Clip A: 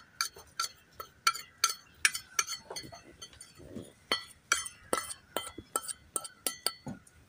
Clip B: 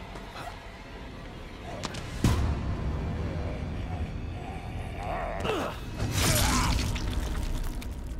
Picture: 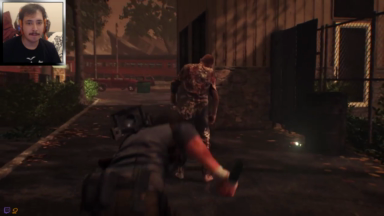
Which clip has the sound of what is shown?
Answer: B